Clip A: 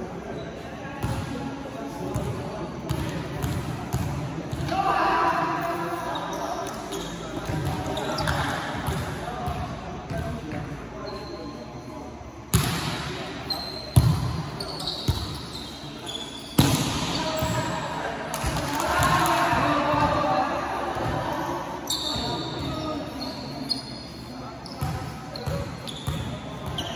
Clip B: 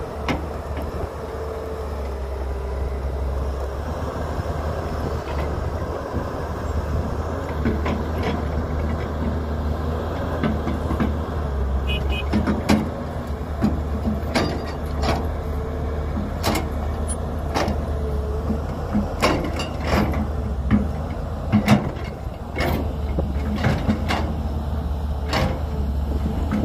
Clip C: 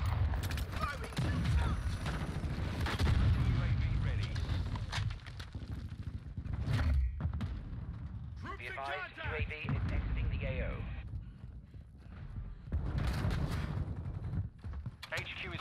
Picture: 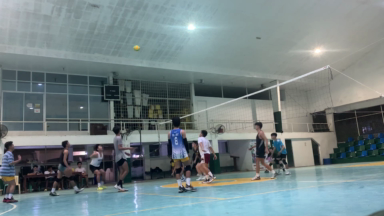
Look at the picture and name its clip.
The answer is A